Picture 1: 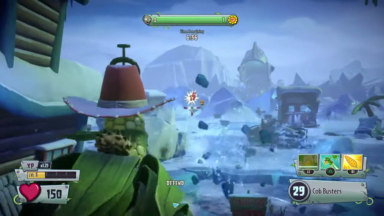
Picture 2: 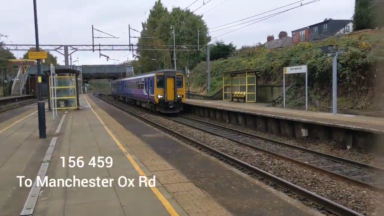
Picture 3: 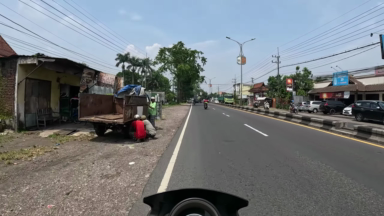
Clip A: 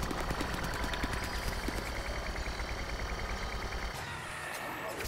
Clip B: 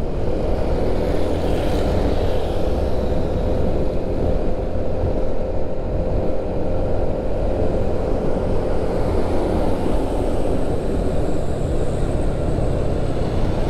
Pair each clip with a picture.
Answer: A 1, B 3